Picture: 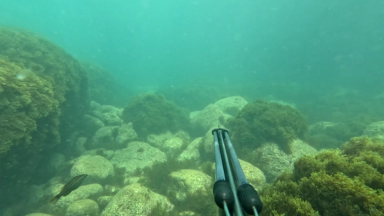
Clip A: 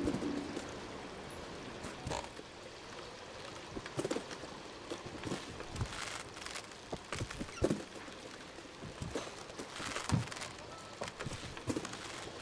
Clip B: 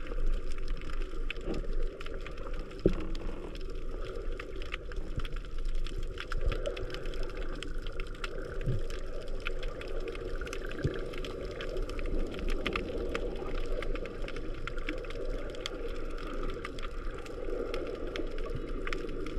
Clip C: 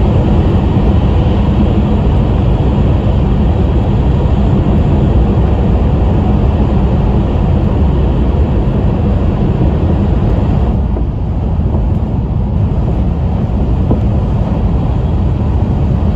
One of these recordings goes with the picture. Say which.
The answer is B